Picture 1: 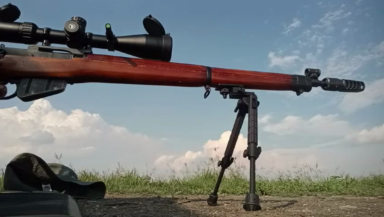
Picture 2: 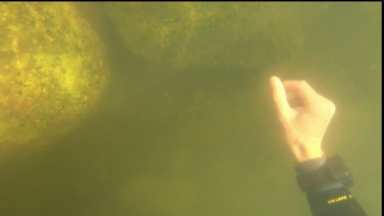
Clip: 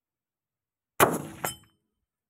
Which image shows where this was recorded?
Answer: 1